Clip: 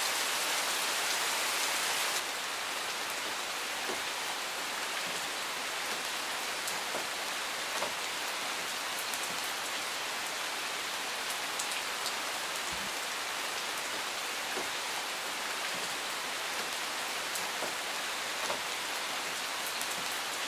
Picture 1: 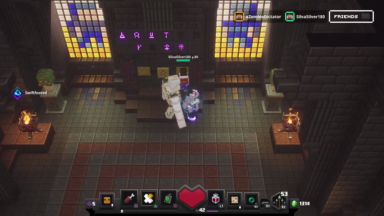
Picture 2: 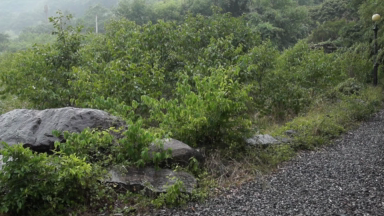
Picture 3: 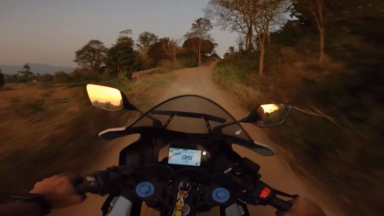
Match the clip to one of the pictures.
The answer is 2